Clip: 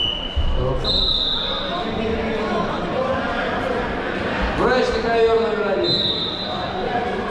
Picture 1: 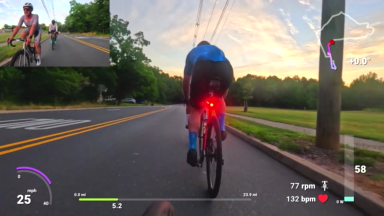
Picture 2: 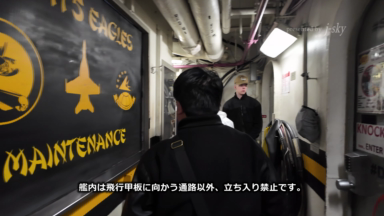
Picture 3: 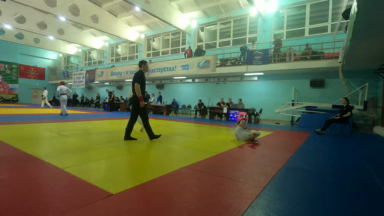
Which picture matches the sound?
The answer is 3